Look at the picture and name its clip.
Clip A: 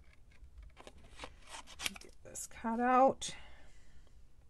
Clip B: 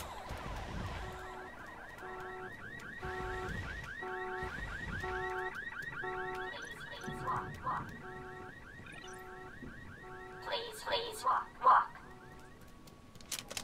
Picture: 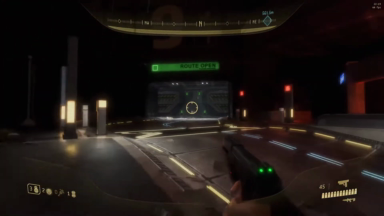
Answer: B